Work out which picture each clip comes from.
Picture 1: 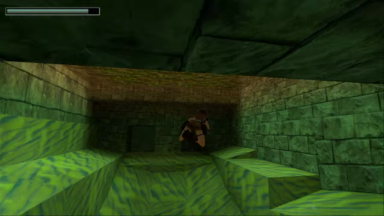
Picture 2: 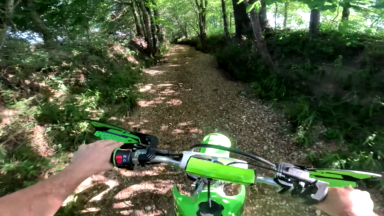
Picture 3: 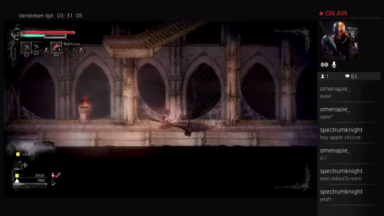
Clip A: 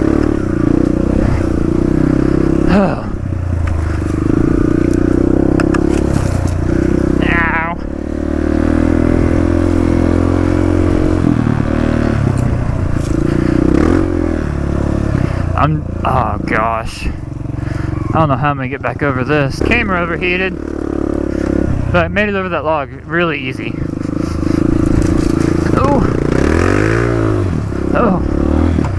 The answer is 2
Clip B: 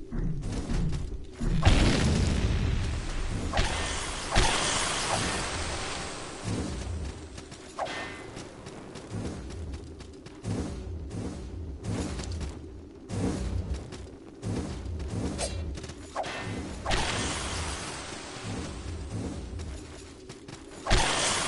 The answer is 3